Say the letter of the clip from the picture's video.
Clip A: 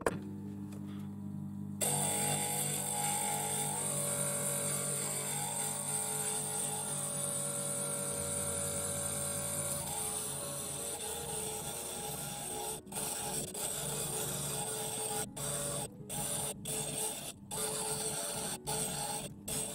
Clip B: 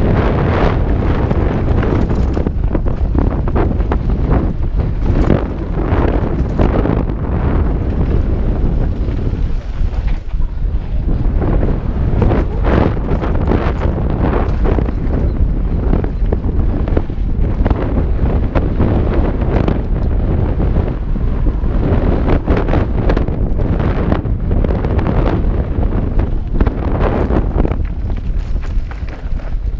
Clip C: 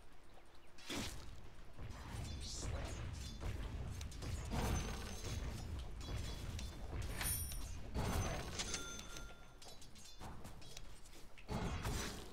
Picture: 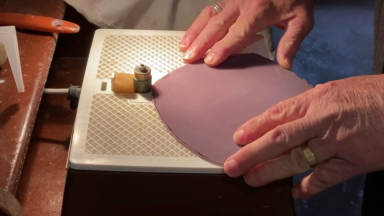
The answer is A